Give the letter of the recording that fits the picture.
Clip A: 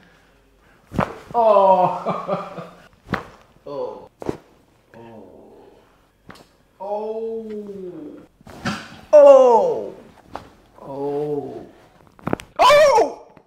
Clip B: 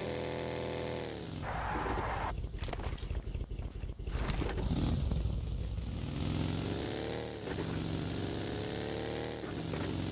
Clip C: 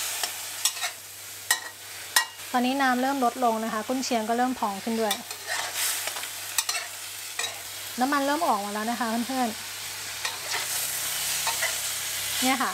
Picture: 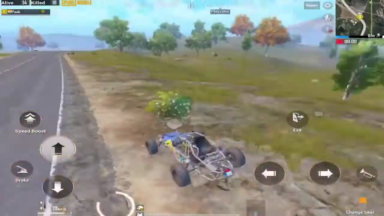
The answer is B